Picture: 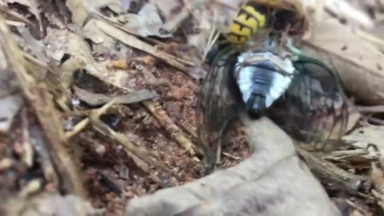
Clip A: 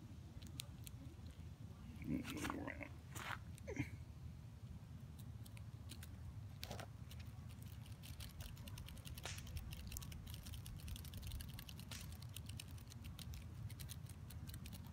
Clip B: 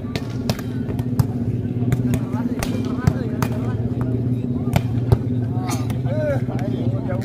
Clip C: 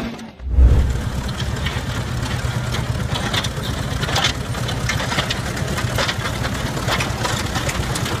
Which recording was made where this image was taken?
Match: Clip A